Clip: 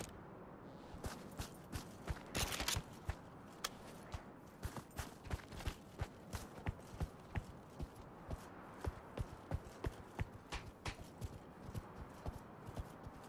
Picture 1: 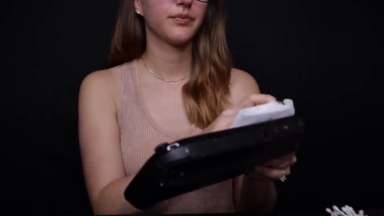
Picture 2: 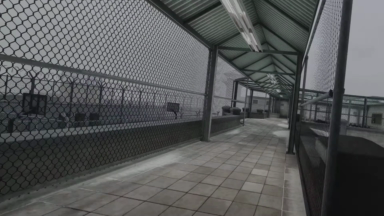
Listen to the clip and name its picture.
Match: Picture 2